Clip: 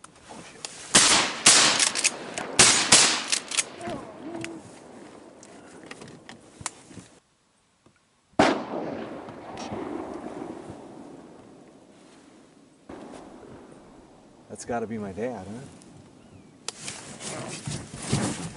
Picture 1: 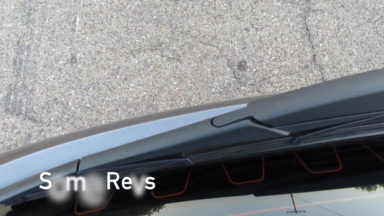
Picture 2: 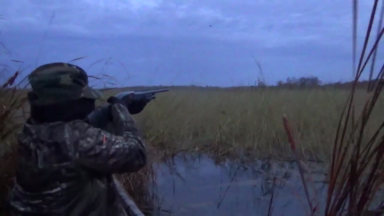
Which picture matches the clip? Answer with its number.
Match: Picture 2